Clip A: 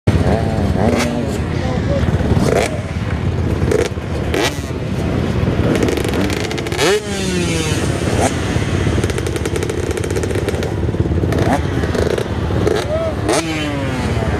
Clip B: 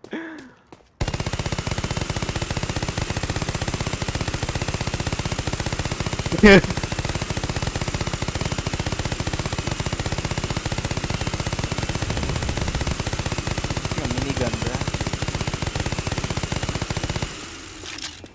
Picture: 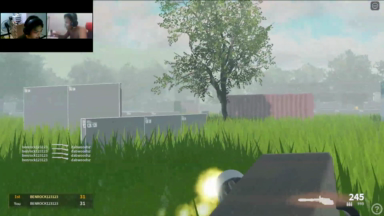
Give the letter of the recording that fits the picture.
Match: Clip B